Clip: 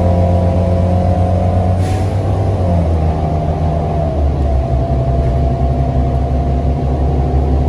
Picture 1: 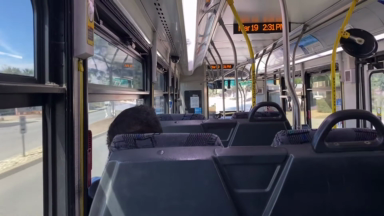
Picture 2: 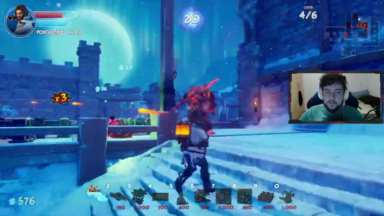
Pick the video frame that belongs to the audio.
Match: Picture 1